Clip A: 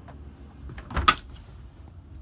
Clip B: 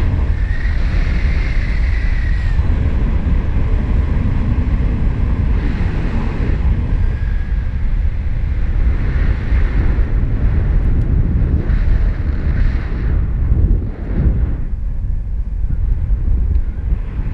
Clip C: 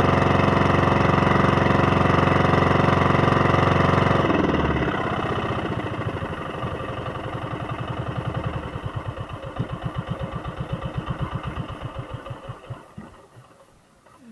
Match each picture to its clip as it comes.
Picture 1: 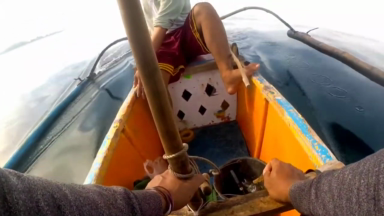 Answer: C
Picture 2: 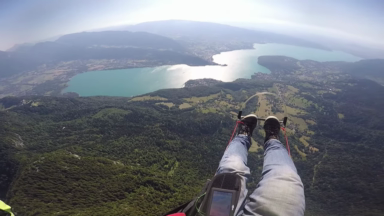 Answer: B